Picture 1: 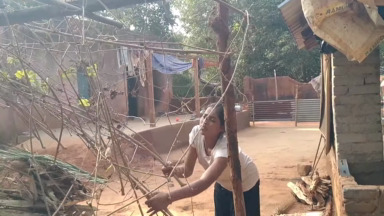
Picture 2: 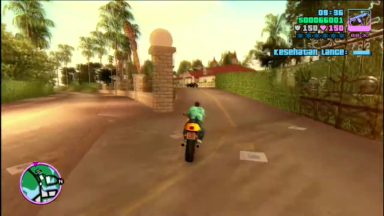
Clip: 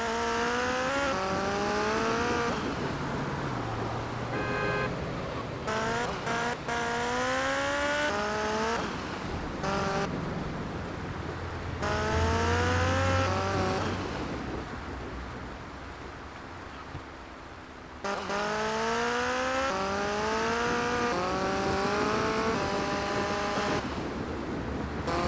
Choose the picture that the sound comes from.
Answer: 2